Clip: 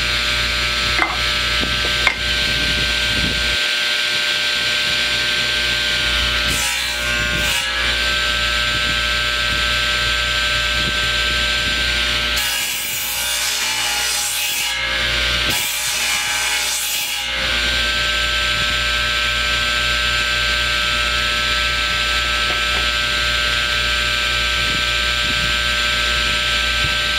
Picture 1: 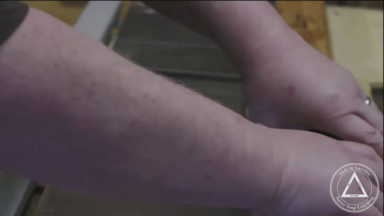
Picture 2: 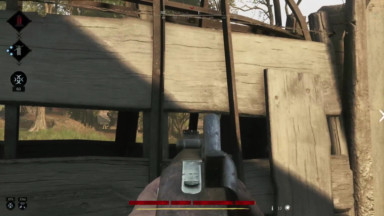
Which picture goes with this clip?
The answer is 1